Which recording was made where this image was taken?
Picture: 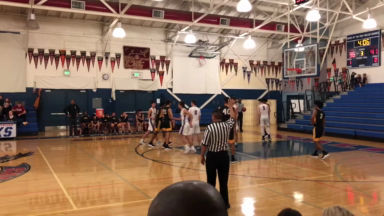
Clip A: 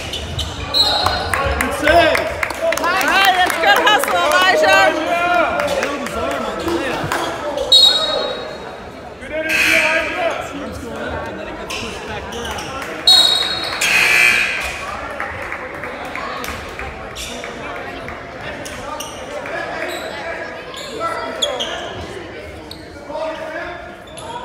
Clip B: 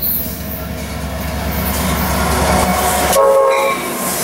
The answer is A